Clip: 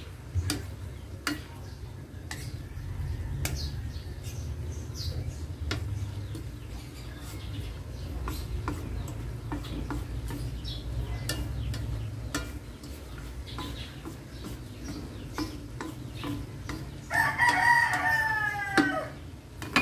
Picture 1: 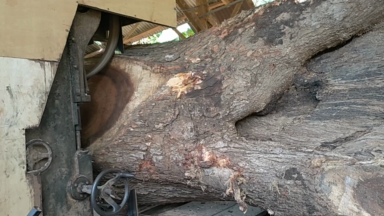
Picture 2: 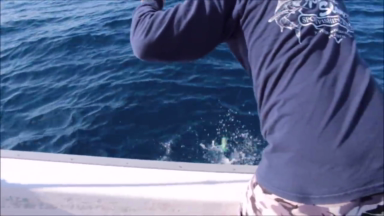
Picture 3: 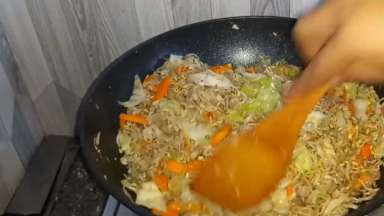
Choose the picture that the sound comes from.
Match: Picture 3